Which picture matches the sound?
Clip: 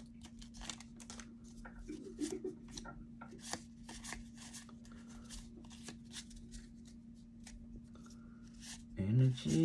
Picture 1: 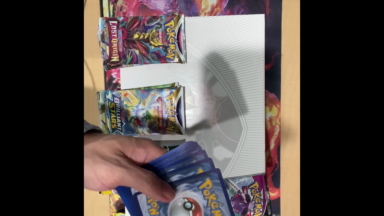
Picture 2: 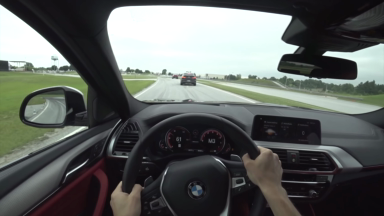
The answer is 1